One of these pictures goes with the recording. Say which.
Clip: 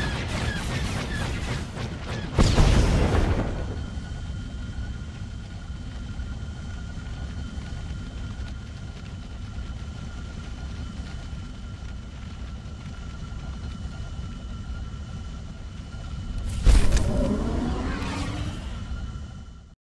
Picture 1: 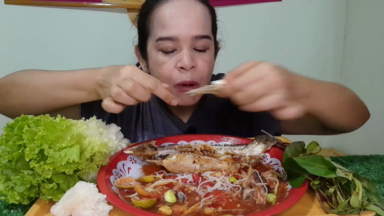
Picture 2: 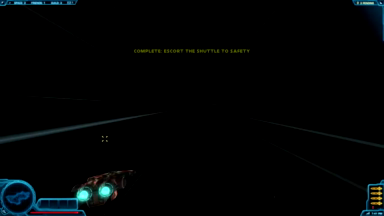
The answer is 2